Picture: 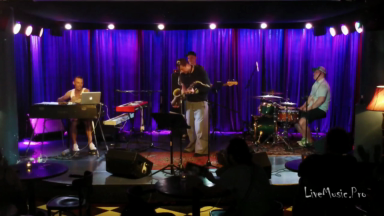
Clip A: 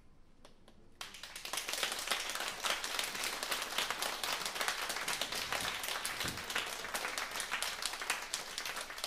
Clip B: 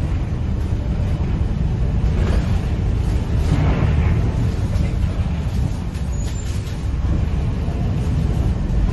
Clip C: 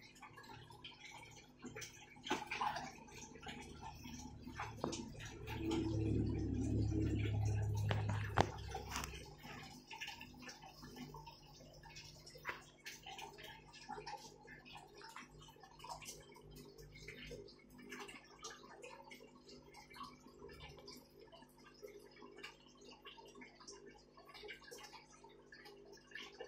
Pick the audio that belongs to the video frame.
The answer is A